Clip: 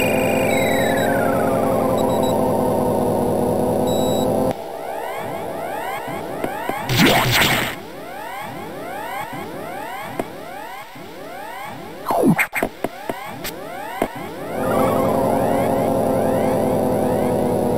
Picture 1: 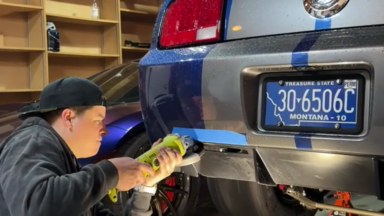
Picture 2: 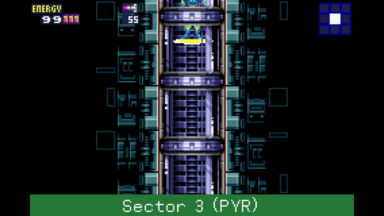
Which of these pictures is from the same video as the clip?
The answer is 2